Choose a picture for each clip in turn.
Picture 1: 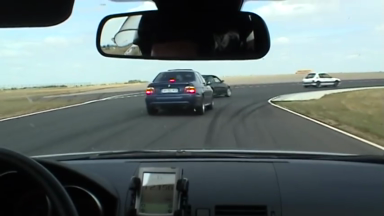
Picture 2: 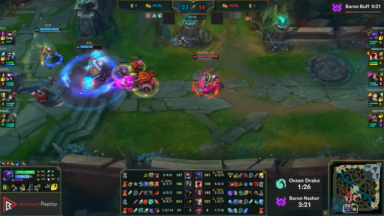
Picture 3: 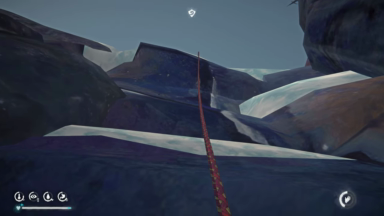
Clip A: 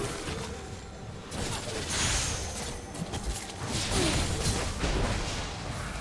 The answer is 2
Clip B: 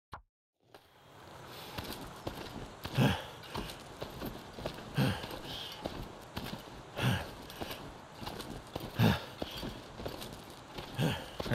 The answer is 3